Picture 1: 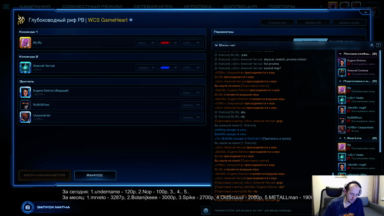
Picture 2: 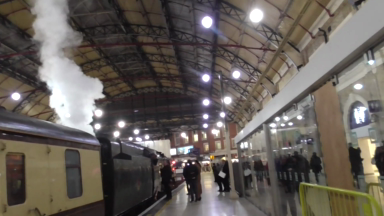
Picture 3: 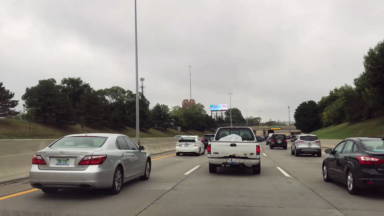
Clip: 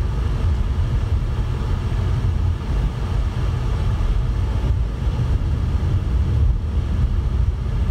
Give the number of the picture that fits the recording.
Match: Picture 3